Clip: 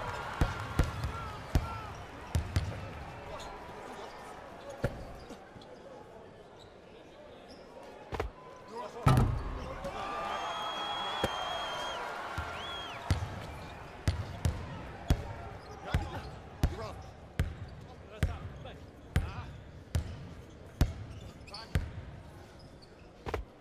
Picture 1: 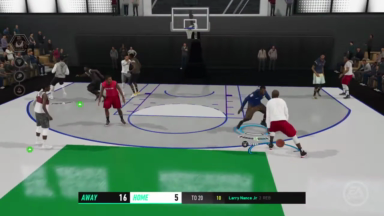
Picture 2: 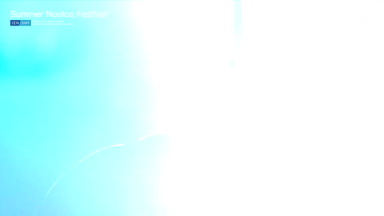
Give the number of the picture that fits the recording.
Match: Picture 1